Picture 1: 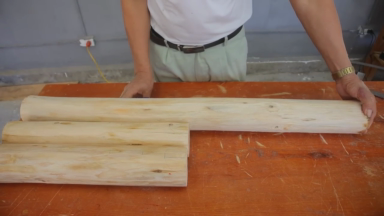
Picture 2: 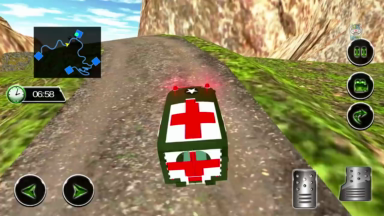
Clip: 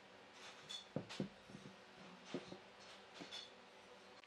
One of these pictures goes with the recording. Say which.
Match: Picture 1